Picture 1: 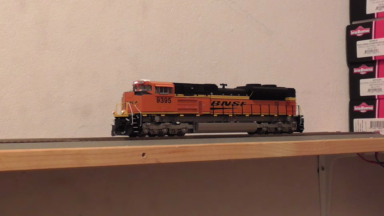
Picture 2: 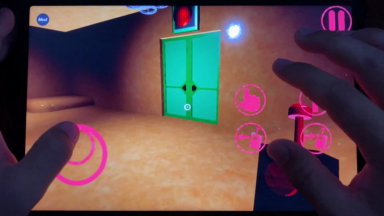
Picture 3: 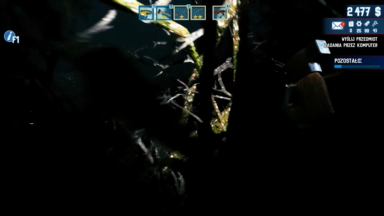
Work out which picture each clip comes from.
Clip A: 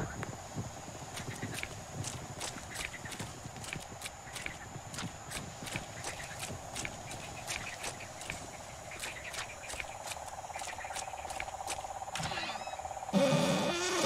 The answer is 3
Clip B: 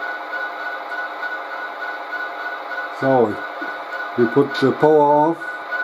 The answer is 1